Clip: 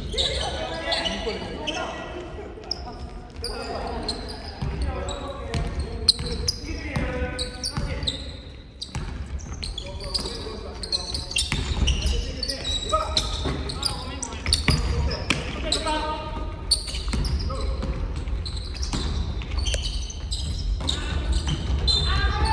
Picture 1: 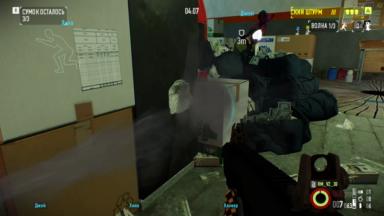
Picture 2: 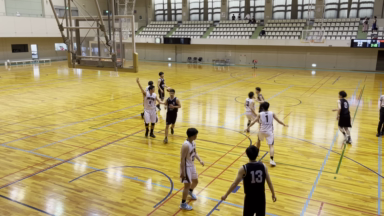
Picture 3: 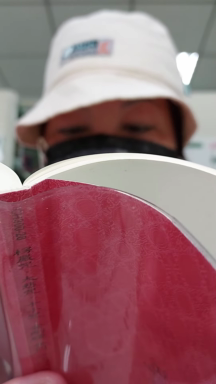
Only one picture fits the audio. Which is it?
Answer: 2